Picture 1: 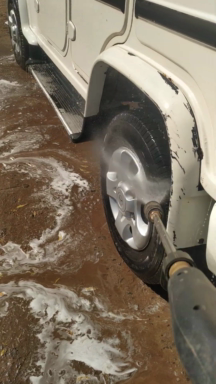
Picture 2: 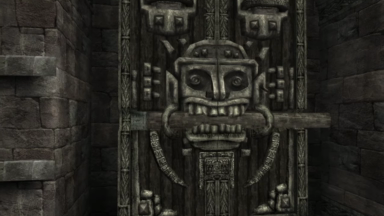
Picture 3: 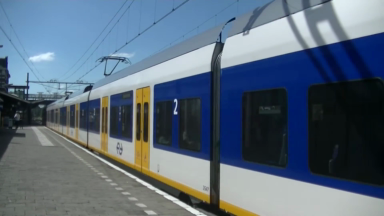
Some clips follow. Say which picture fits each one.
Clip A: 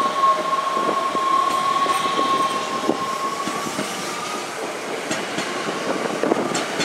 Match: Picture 3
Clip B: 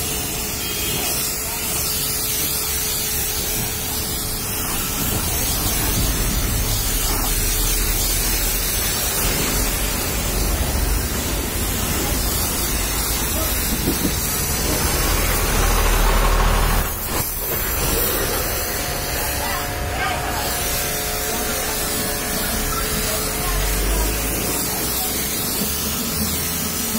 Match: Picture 1